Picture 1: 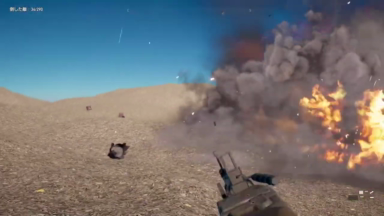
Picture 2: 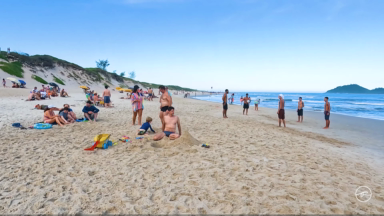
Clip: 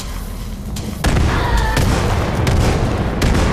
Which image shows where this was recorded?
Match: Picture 1